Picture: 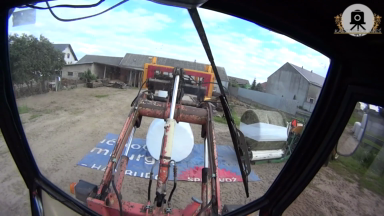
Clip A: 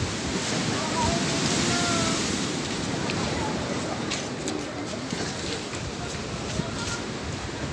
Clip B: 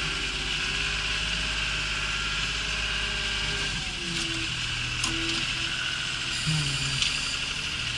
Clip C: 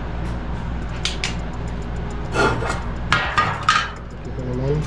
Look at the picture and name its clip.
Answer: B